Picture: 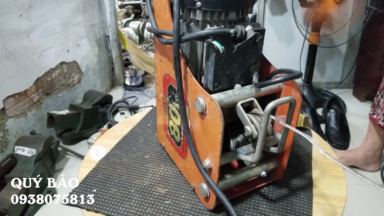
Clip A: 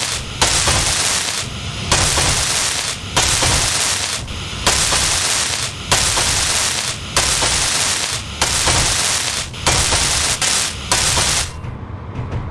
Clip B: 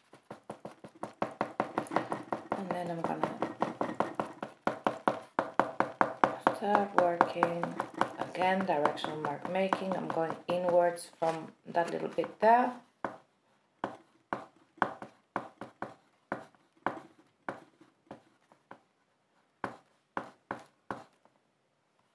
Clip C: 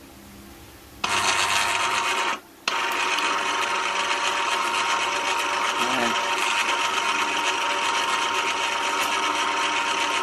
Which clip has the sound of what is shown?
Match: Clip C